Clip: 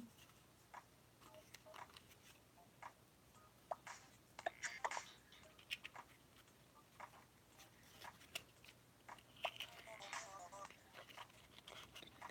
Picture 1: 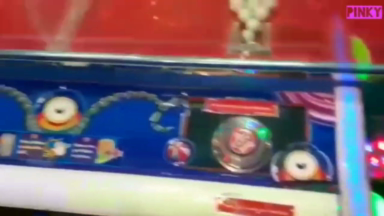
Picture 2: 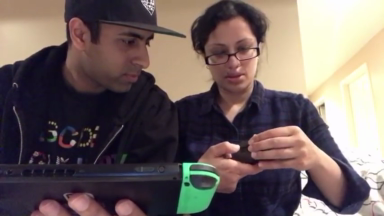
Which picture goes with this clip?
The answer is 2